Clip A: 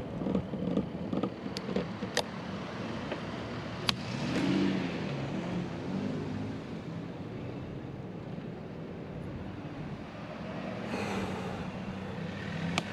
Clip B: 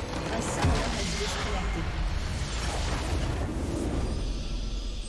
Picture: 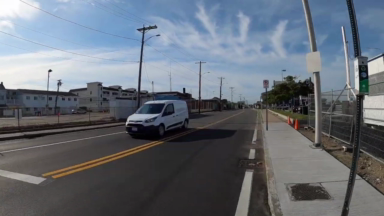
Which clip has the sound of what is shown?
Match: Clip A